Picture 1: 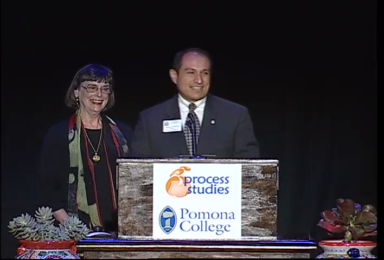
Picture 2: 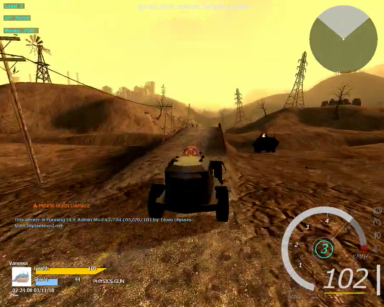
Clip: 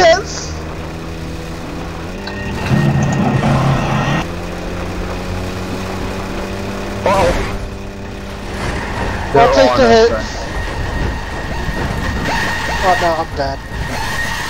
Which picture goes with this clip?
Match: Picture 2